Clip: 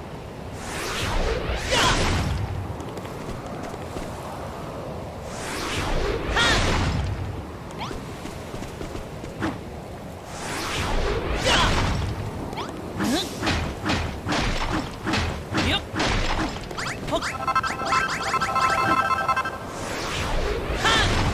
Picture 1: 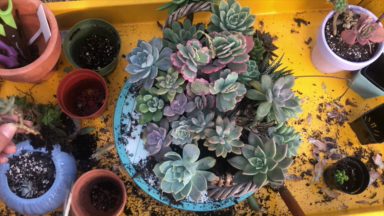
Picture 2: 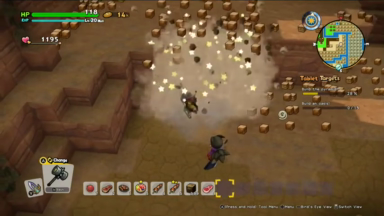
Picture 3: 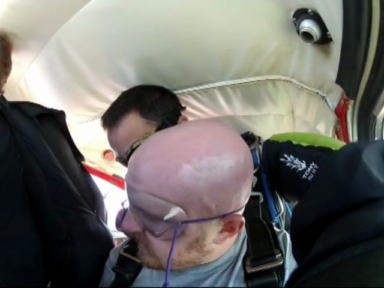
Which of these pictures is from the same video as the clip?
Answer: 2